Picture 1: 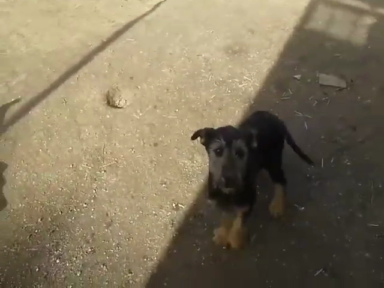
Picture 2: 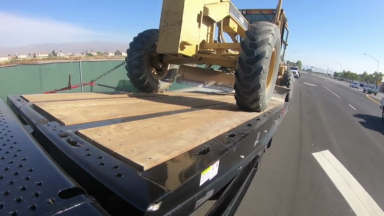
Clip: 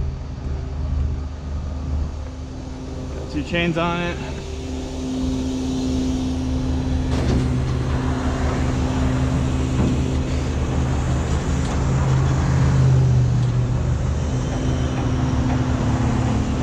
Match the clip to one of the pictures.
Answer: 2